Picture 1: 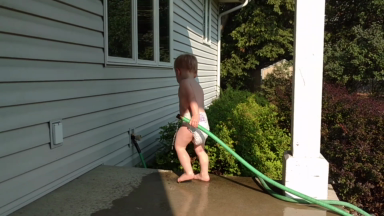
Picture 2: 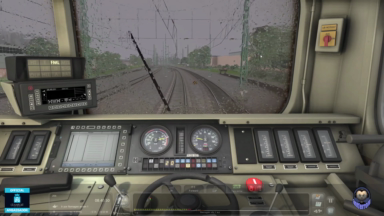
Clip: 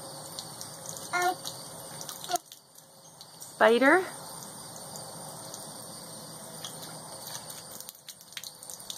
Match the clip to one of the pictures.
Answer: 1